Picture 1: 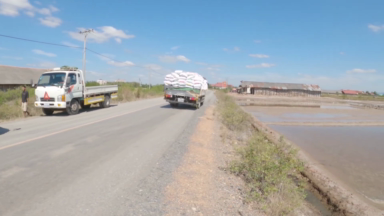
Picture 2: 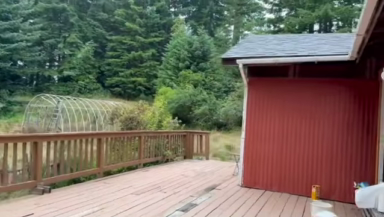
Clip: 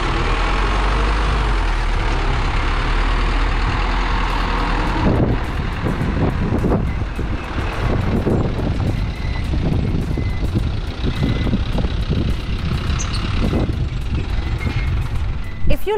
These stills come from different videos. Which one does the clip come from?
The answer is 1